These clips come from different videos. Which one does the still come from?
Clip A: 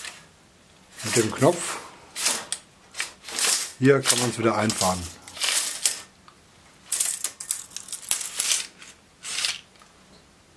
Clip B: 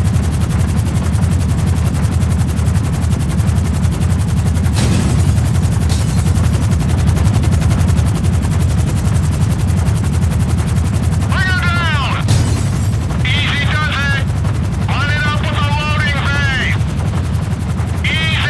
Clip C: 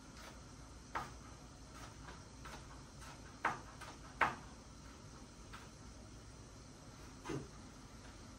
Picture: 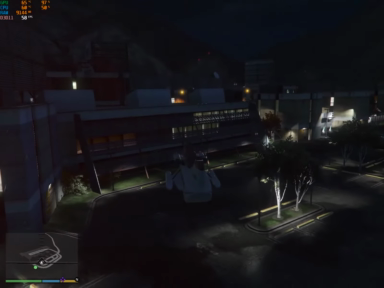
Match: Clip B